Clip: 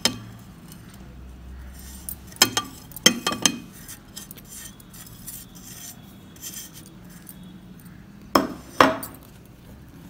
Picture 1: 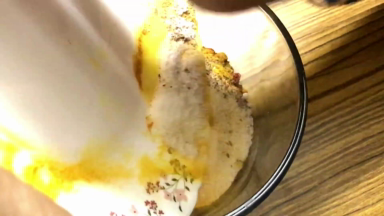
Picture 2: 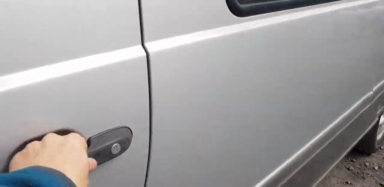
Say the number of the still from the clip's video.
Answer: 1